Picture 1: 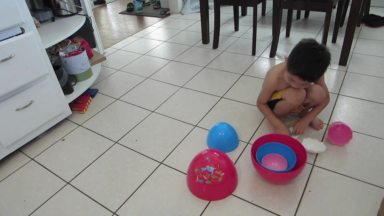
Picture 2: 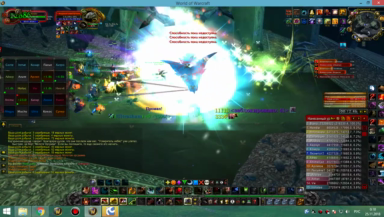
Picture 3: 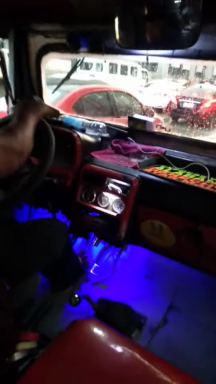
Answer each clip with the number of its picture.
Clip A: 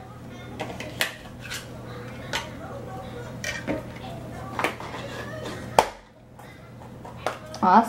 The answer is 1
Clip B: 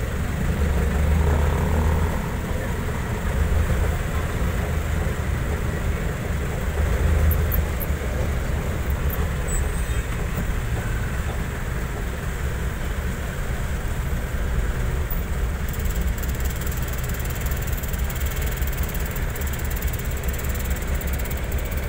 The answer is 3